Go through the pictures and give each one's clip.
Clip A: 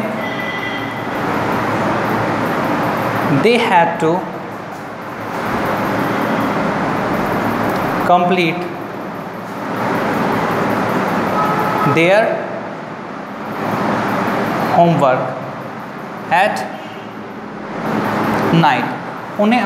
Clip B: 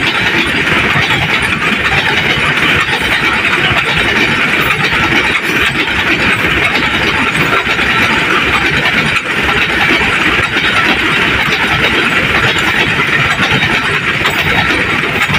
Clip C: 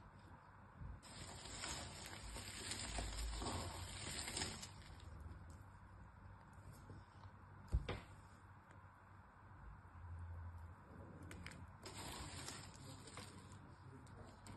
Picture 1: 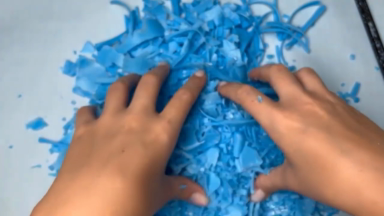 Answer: C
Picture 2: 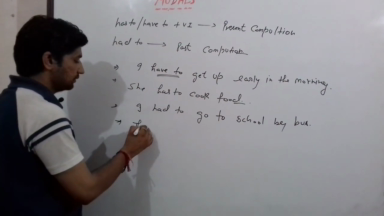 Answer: A